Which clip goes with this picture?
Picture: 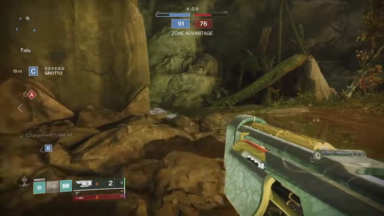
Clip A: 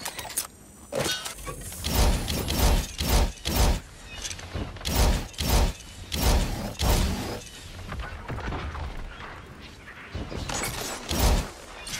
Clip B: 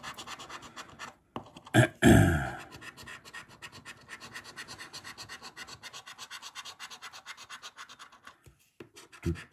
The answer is A